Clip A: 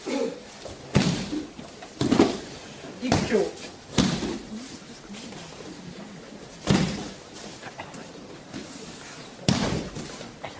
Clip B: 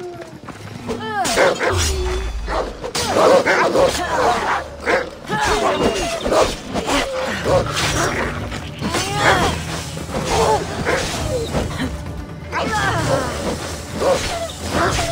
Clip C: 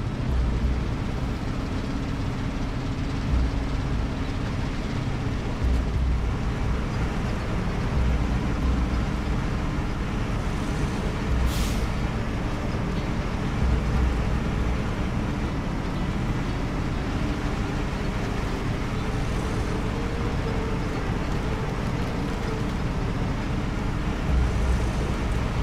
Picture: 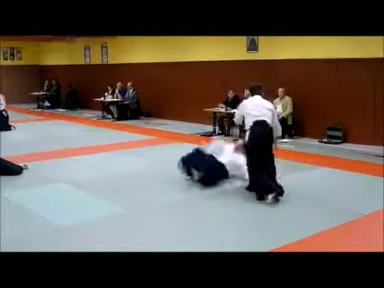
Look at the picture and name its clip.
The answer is A